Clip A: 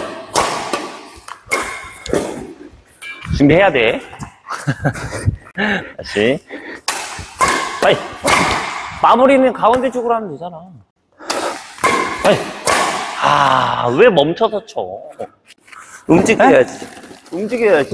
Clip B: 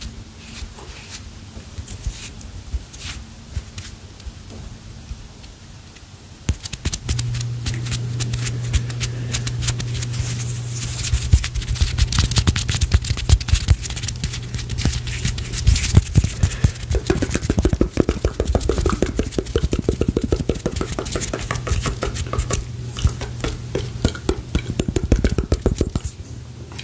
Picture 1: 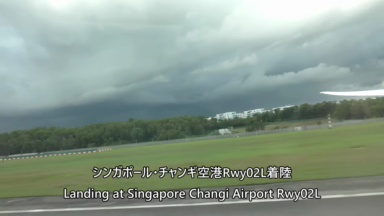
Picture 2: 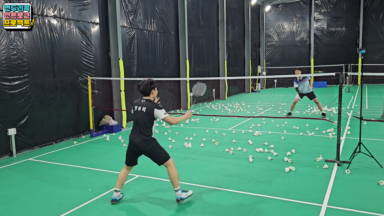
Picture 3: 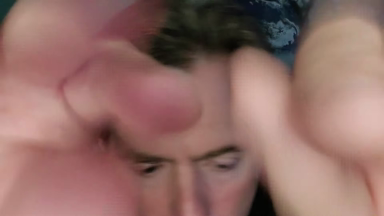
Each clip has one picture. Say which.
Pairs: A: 2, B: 3